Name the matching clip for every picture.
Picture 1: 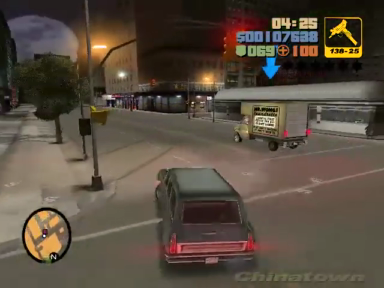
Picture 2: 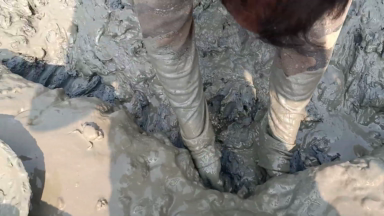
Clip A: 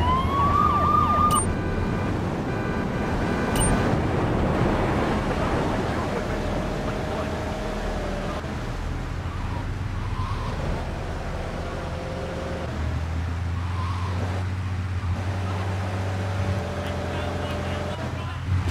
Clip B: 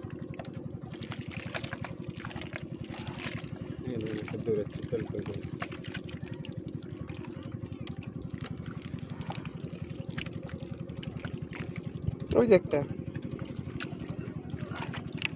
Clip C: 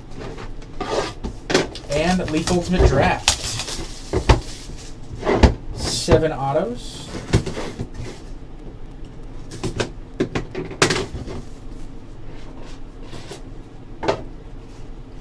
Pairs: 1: A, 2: B